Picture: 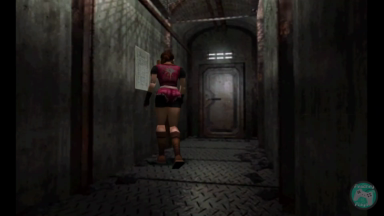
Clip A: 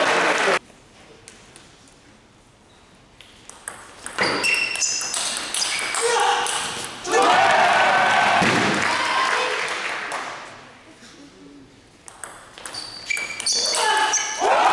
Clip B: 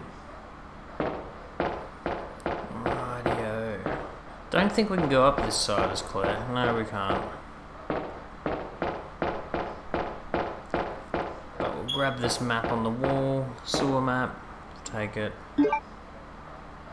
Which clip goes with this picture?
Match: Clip B